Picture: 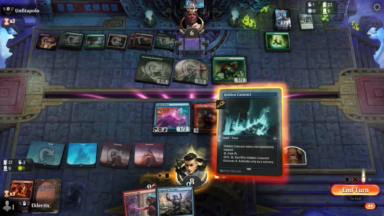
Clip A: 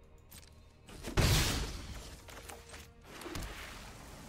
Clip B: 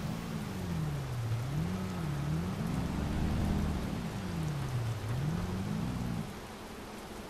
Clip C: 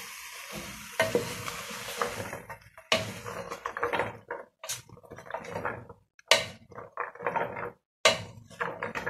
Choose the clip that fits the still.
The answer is A